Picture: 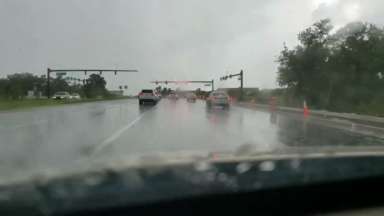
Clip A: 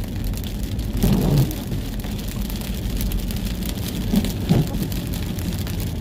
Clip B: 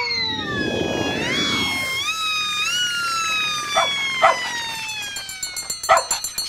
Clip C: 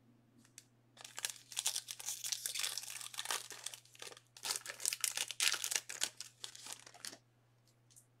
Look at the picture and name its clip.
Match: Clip A